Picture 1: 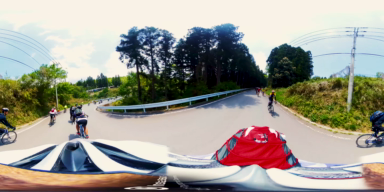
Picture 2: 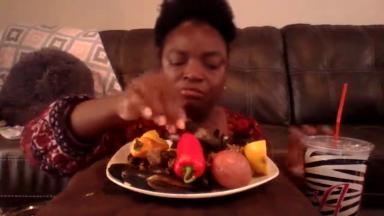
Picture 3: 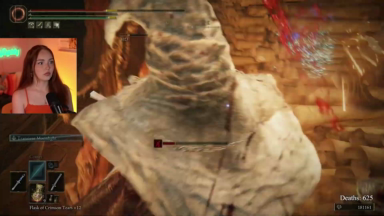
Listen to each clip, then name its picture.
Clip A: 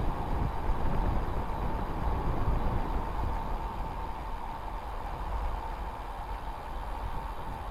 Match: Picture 1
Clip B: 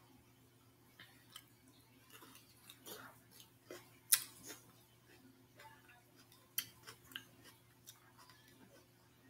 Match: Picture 2